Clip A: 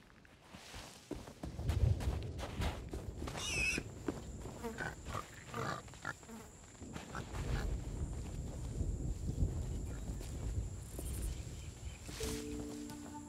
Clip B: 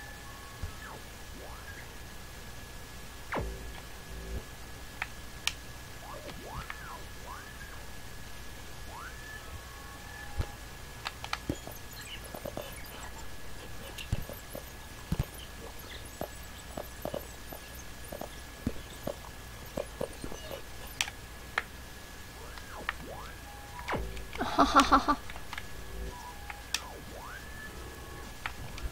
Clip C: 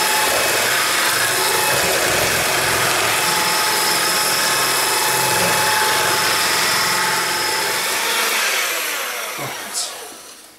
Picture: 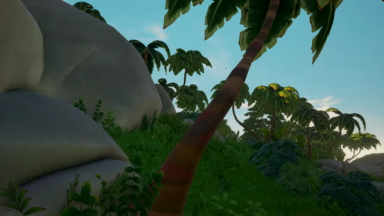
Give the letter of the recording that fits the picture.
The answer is A